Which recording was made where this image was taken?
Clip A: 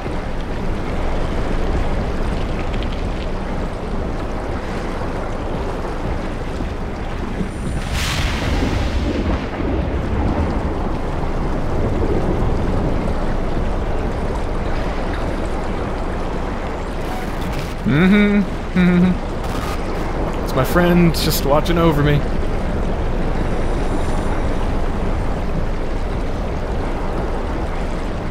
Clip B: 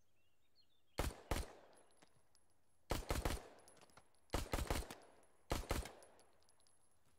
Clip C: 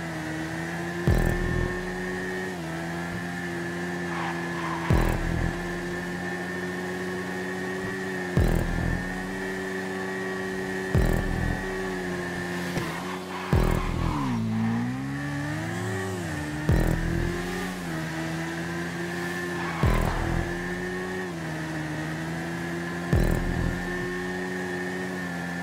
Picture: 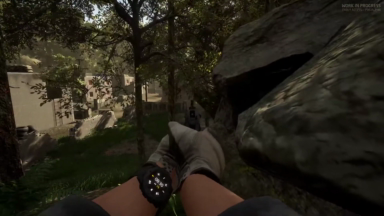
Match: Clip B